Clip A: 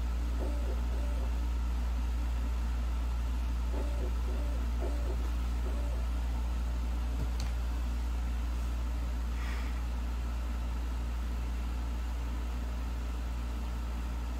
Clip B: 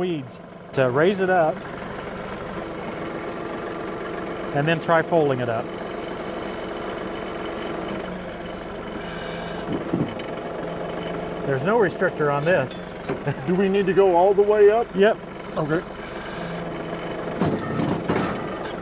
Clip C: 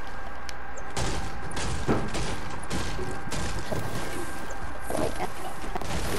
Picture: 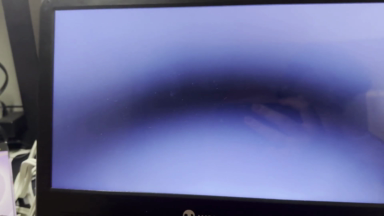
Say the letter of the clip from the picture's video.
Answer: A